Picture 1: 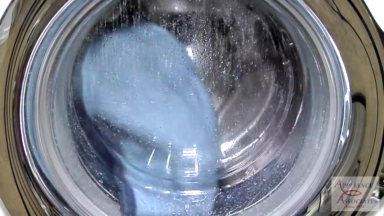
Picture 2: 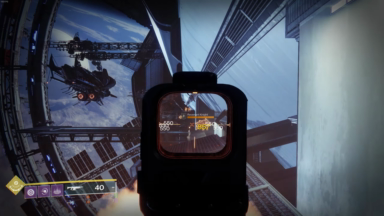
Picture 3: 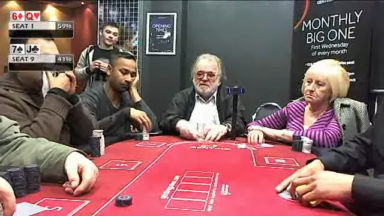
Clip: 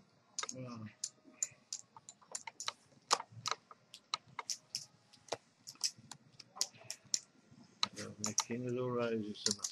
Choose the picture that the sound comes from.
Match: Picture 3